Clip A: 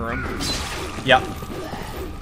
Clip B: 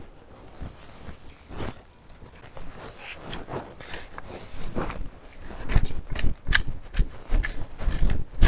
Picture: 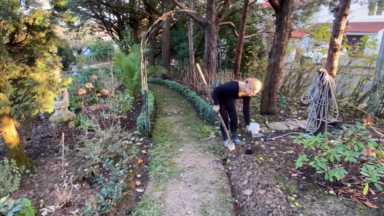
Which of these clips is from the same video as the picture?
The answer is B